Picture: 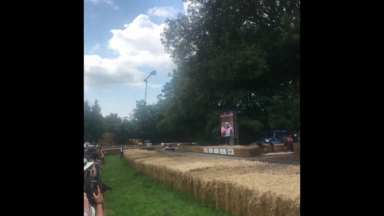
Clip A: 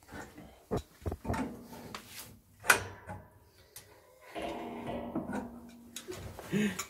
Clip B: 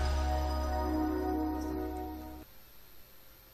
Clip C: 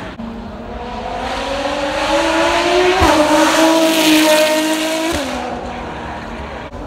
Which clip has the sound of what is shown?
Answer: C